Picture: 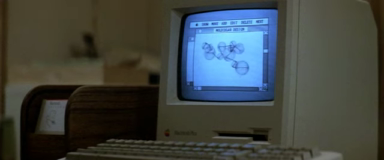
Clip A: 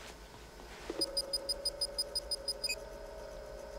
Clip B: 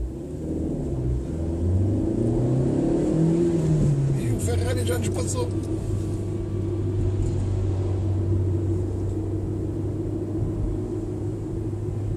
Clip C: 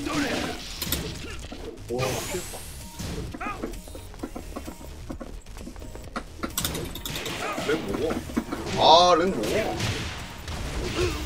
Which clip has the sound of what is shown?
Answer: A